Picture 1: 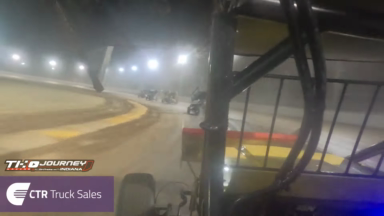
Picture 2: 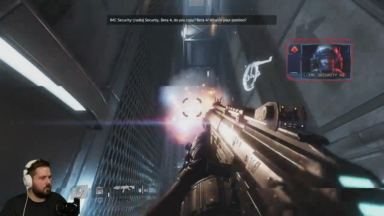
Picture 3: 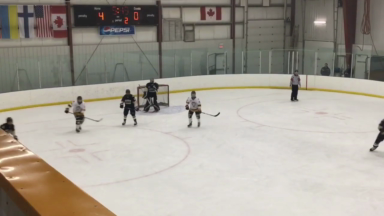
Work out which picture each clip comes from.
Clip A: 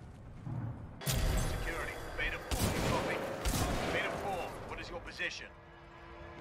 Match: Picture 2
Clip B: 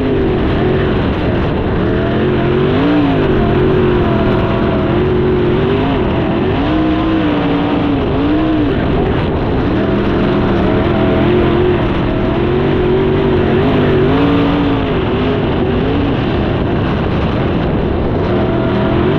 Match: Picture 1